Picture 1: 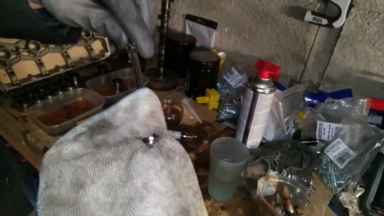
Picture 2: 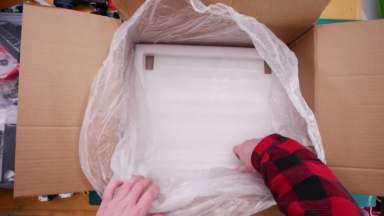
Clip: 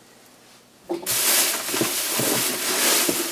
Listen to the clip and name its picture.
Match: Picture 2